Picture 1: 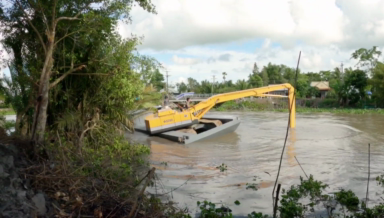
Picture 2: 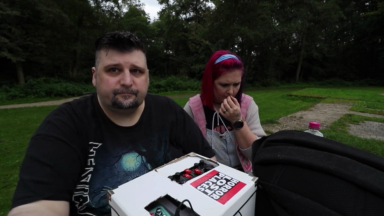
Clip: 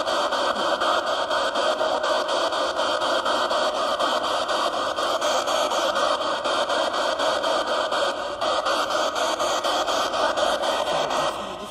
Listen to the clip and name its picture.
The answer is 2